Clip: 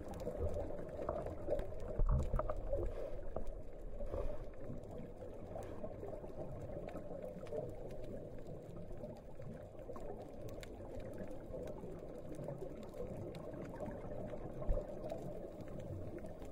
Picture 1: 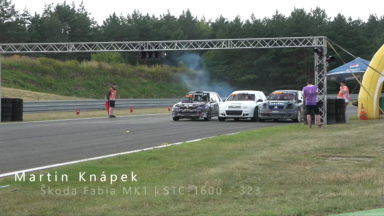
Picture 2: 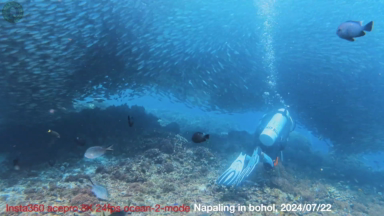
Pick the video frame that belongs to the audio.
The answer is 2